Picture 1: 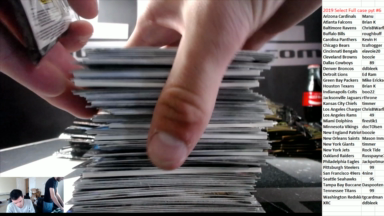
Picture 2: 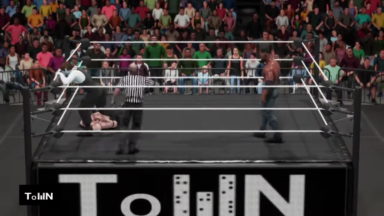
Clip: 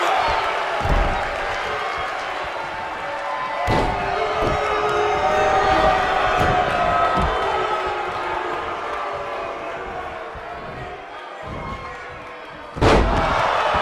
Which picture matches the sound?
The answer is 2